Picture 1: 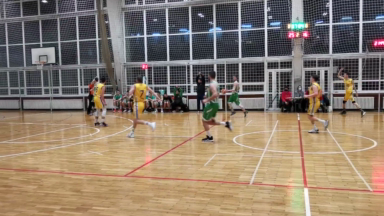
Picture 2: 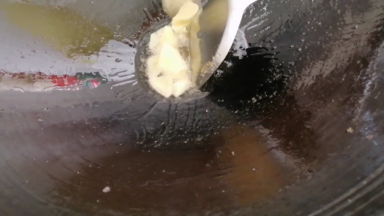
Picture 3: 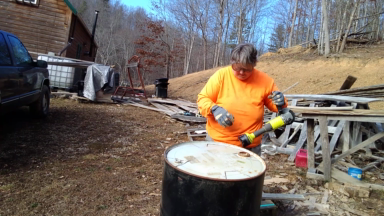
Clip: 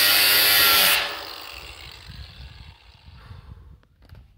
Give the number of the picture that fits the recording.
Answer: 3